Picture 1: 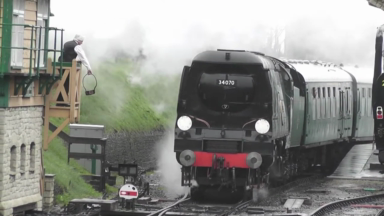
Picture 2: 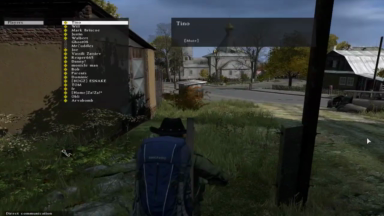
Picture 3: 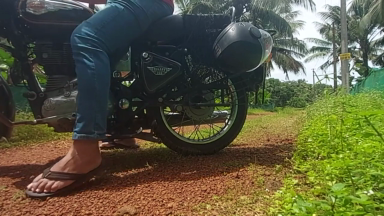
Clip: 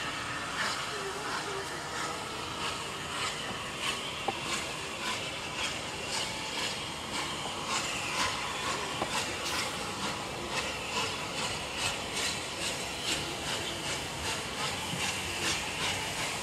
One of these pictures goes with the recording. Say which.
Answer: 1